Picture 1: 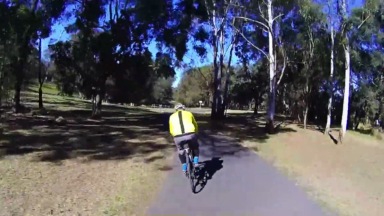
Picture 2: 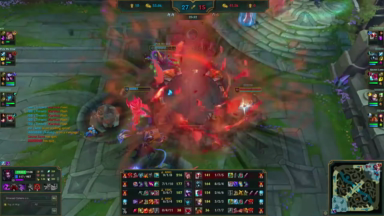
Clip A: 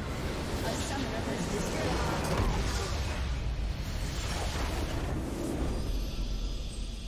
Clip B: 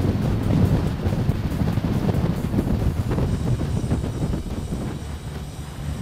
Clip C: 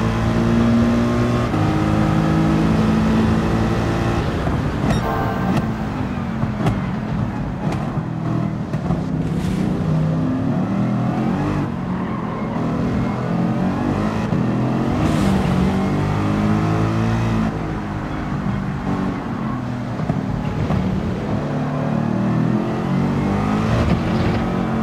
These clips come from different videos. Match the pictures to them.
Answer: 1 B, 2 A